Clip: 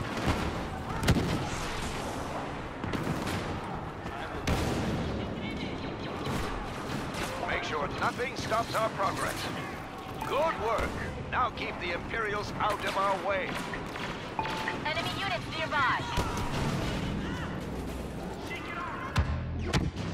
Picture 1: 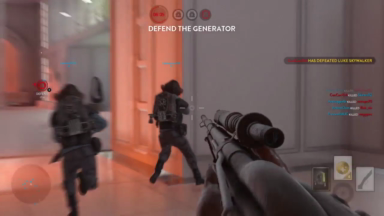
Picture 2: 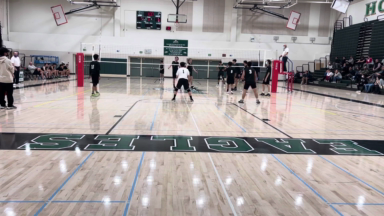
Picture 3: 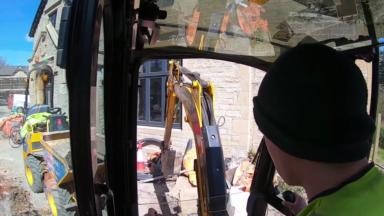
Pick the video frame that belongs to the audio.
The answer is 1